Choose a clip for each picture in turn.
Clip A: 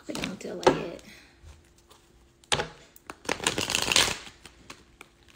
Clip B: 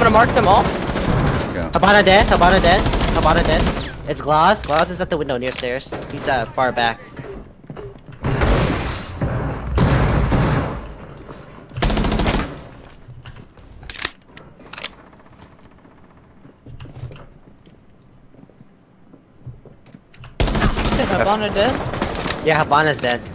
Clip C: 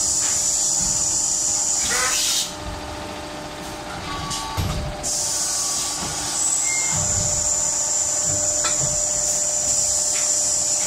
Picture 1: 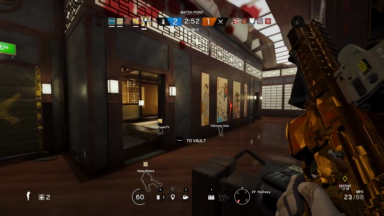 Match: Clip B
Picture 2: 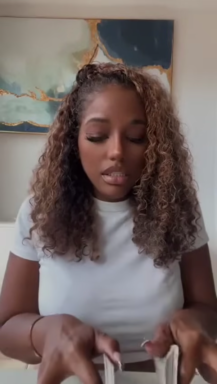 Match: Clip A